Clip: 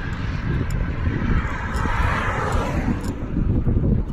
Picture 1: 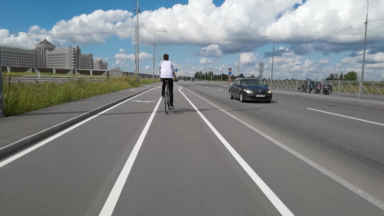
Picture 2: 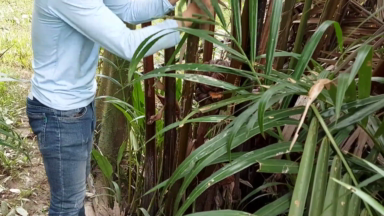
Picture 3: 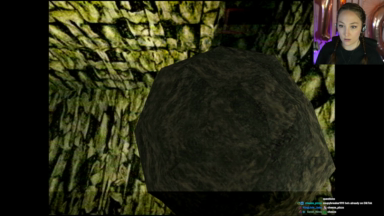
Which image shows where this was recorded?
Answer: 1